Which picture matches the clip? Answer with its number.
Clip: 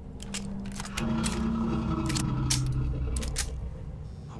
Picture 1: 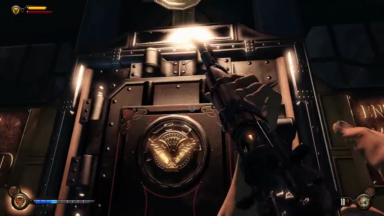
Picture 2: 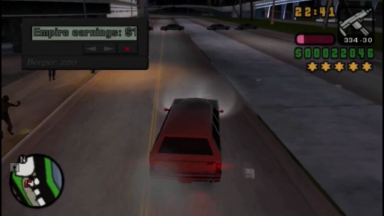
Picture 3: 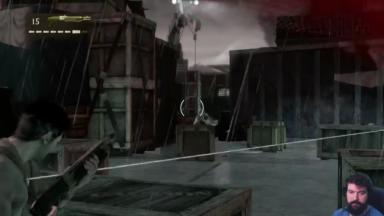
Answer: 1